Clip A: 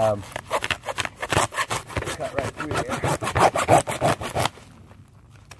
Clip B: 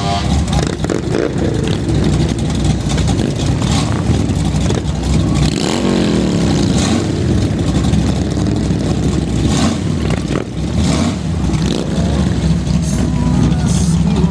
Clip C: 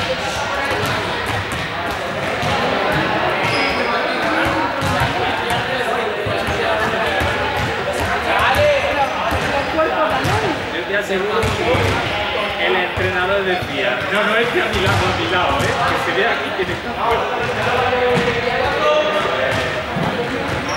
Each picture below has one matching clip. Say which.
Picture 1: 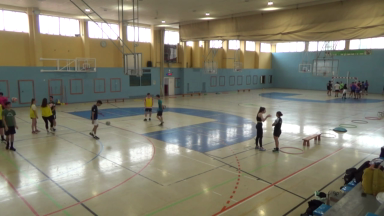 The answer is C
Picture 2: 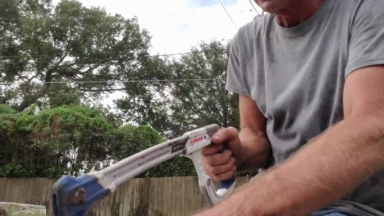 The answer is A